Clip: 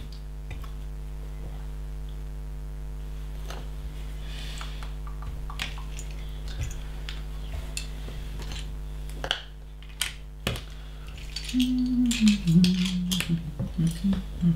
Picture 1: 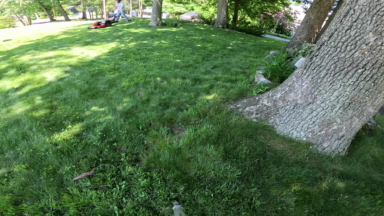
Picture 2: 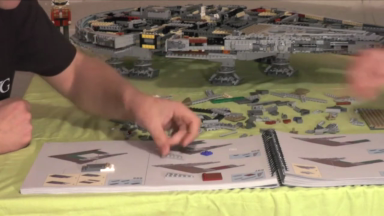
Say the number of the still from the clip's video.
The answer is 2